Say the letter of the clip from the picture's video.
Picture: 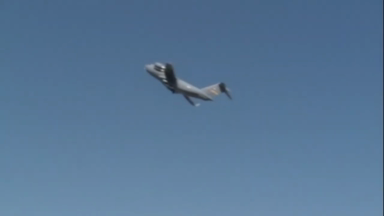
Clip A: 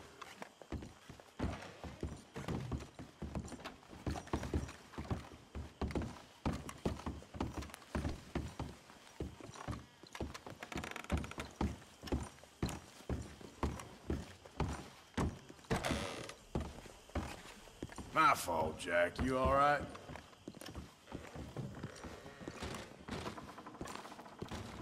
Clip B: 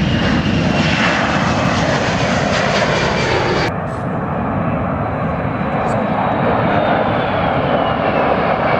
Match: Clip B